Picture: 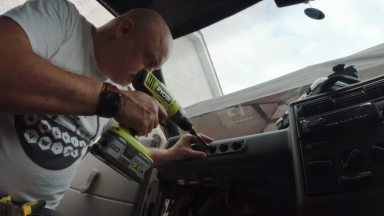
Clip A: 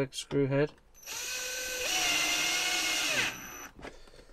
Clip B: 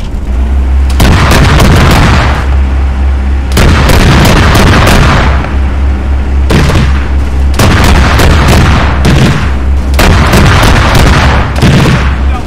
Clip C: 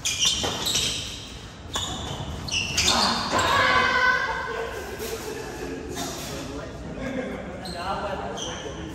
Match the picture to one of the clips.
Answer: A